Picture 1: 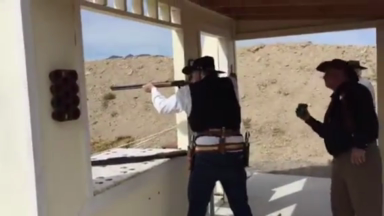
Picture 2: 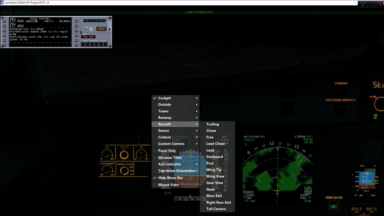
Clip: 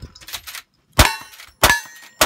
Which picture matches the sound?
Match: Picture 1